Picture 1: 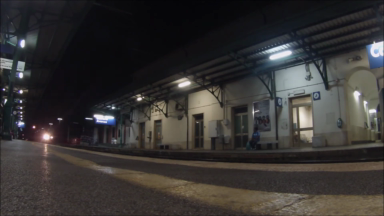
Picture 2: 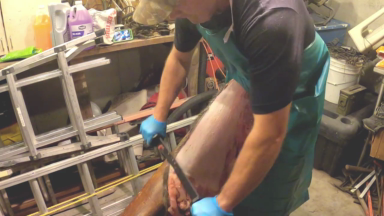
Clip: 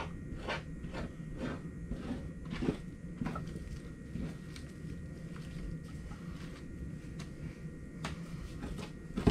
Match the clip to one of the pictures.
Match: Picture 2